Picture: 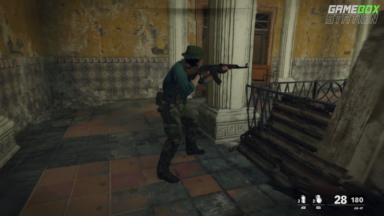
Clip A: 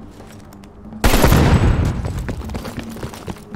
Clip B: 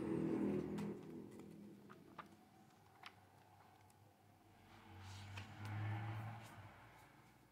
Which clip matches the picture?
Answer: A